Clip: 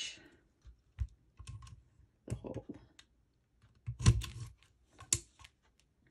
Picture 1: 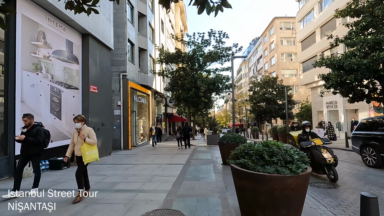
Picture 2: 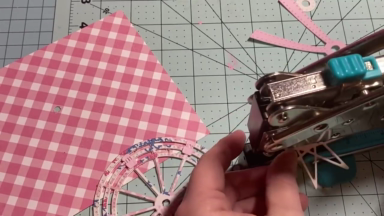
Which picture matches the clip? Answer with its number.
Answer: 2